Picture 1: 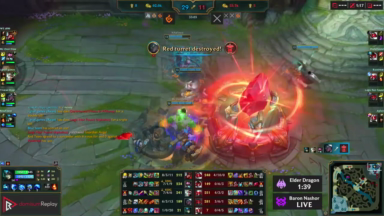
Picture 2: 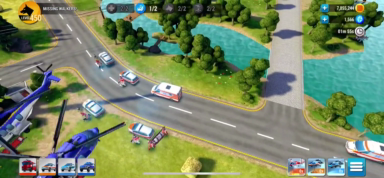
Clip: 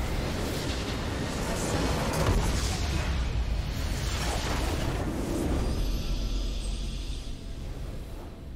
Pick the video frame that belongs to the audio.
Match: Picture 1